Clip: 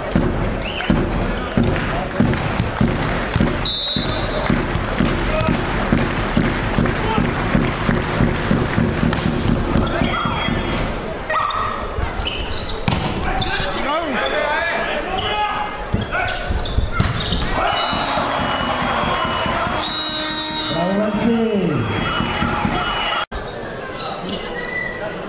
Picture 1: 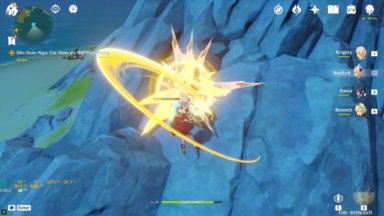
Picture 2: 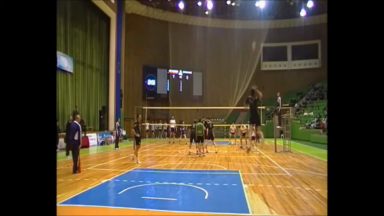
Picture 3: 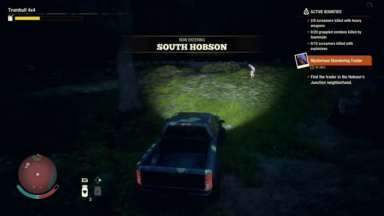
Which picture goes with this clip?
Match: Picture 2